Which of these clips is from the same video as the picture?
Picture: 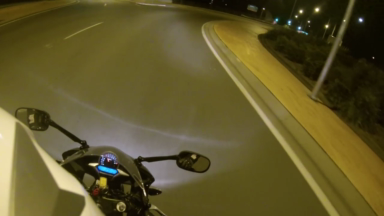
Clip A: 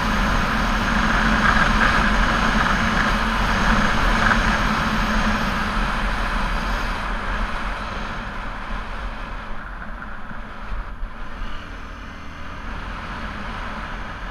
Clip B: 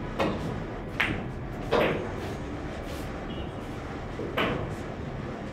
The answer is A